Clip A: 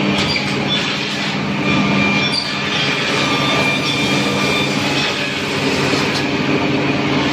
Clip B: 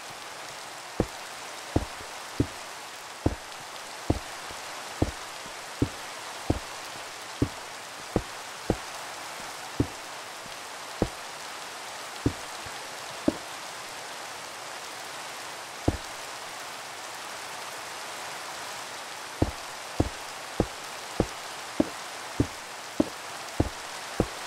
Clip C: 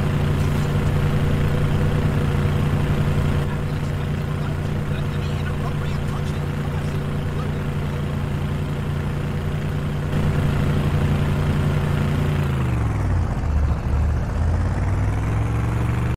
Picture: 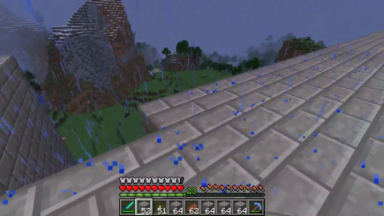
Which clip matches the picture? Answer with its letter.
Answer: B